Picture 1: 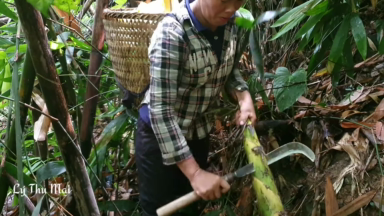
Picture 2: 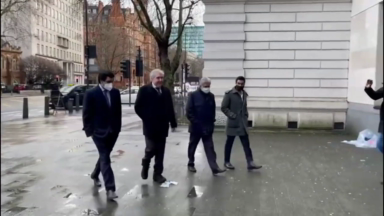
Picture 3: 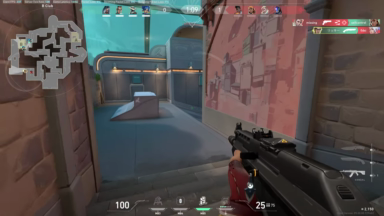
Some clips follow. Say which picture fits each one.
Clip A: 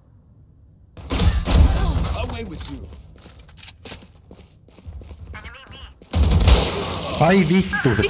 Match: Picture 3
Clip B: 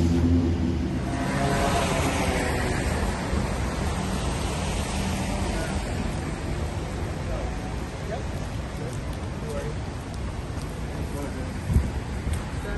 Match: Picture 2